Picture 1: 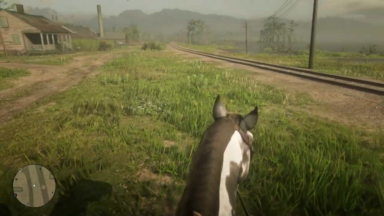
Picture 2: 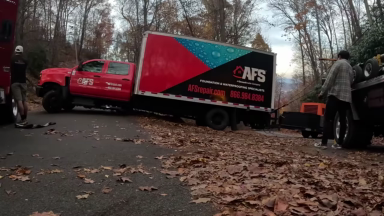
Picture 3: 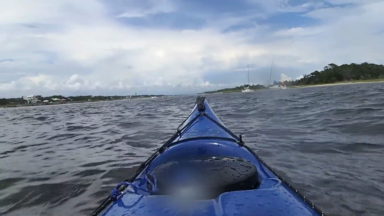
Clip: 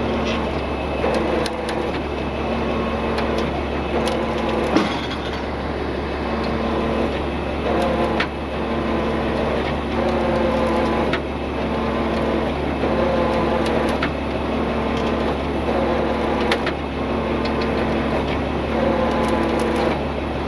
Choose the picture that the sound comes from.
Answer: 2